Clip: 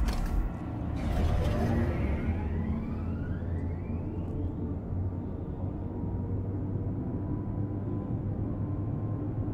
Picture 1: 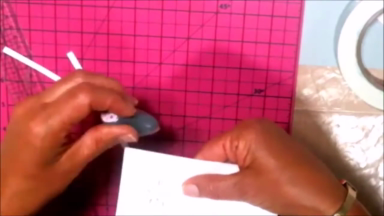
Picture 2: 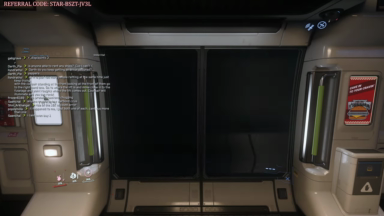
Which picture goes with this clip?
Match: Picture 2